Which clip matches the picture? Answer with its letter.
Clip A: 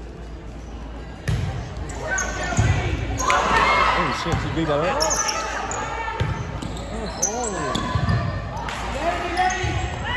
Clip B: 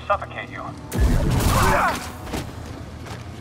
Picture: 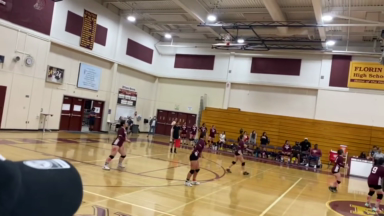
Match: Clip A